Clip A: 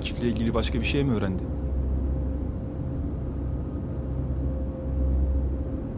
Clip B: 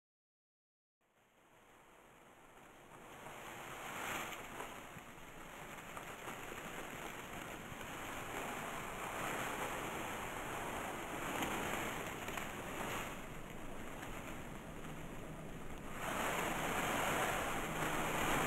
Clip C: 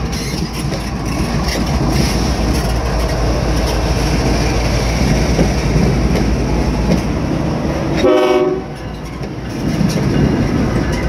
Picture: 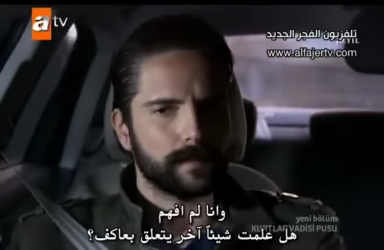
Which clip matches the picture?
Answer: A